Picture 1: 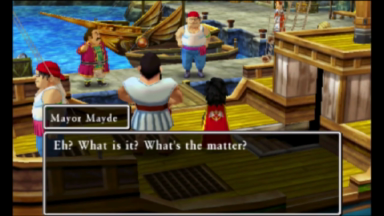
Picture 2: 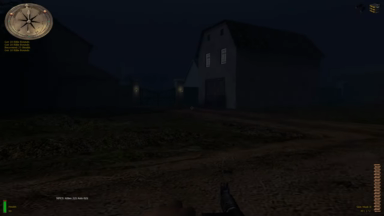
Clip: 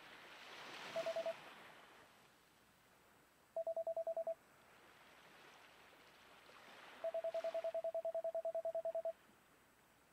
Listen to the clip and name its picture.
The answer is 1